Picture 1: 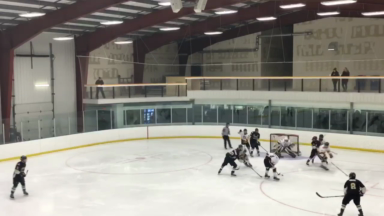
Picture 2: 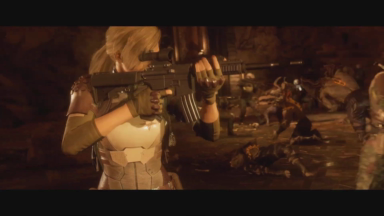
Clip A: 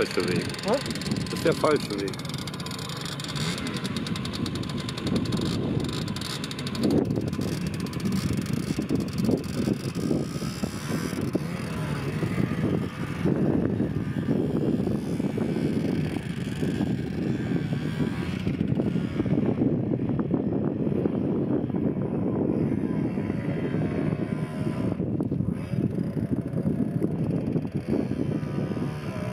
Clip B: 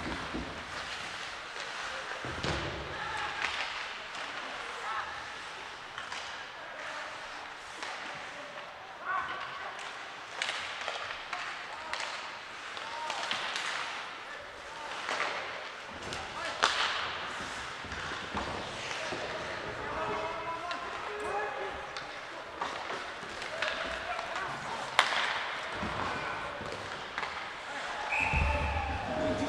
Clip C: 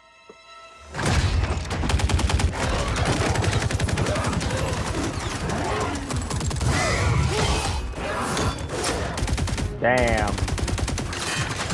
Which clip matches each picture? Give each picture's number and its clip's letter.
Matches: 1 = B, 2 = C